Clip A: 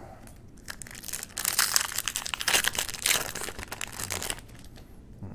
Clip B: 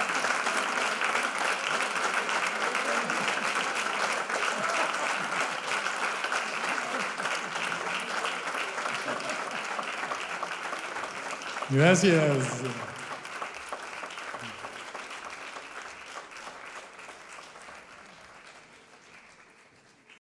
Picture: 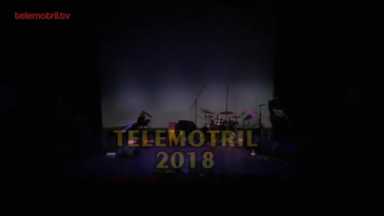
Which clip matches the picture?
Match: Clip B